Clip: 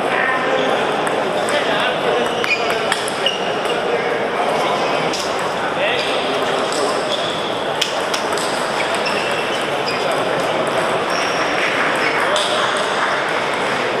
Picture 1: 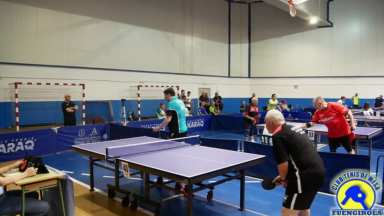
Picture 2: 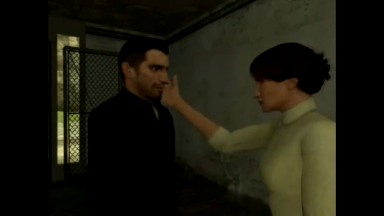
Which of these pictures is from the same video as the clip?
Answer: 1